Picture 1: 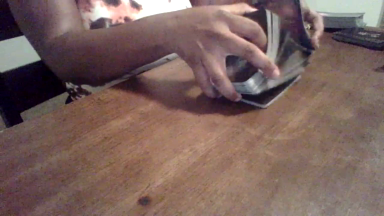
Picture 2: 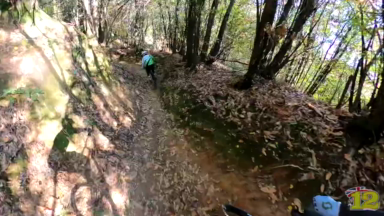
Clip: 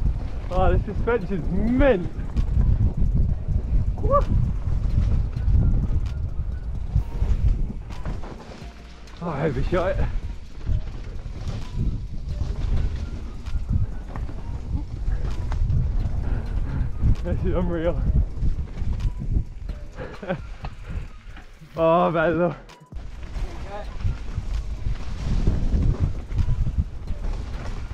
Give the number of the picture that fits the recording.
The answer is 2